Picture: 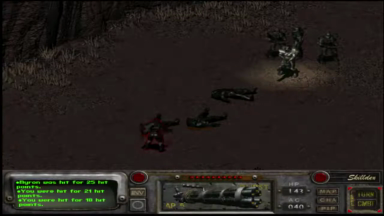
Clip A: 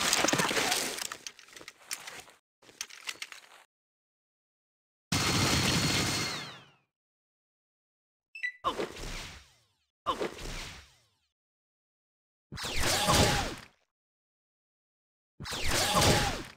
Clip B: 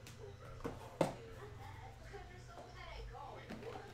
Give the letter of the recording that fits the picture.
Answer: A